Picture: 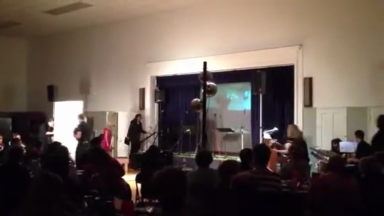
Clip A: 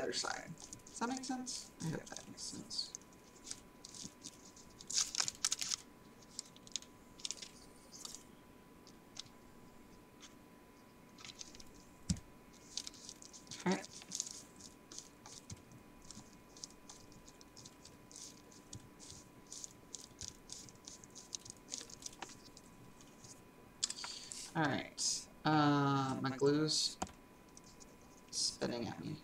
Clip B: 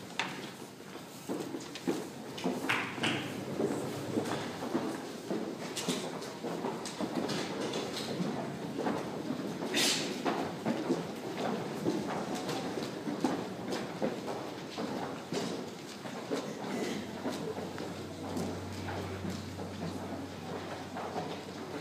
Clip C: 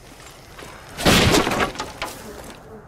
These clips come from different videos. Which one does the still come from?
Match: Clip B